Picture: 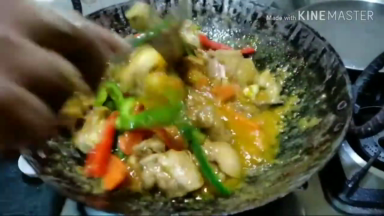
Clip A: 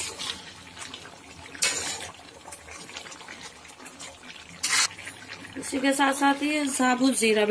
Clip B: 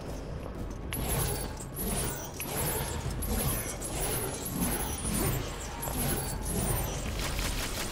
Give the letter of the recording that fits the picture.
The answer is A